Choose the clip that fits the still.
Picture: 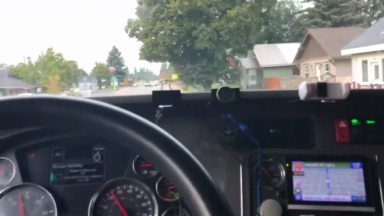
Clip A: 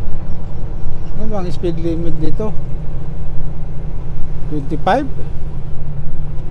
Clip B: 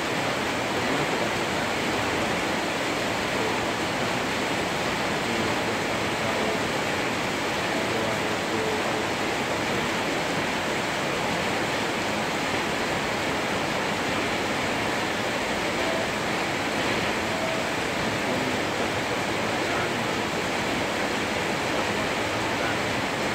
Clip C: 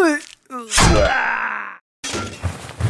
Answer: A